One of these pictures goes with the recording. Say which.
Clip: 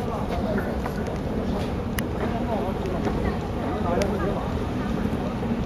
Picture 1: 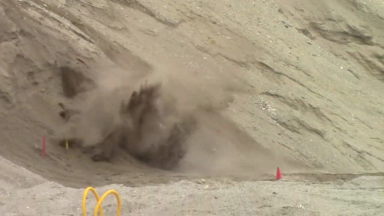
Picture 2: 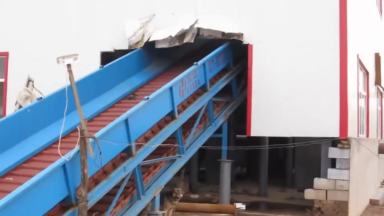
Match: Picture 2